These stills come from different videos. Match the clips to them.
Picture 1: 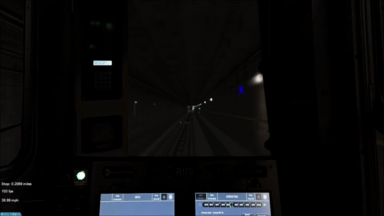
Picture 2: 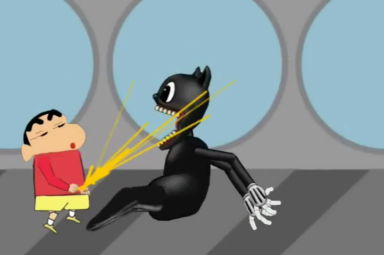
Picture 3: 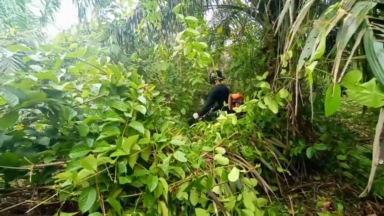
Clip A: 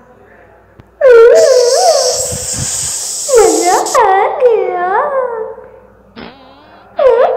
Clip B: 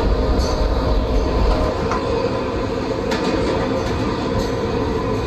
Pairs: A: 2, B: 1